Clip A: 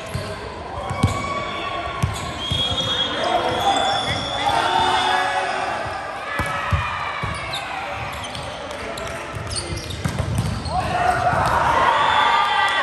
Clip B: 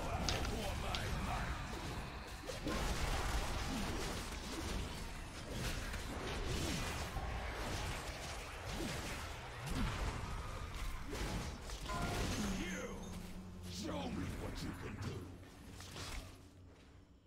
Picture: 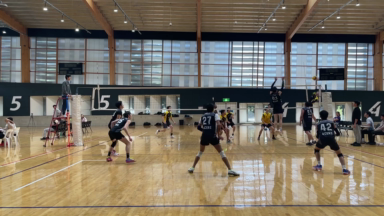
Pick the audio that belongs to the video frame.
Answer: A